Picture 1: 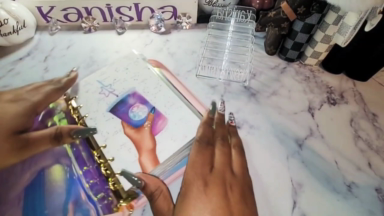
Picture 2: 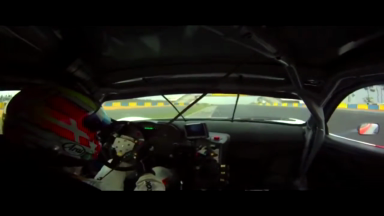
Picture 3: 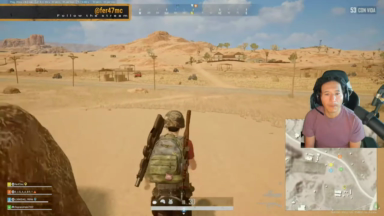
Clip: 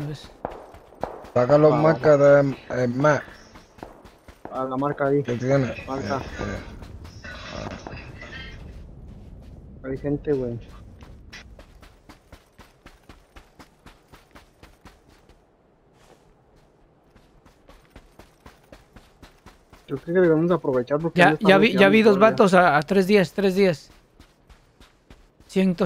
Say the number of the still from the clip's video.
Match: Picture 3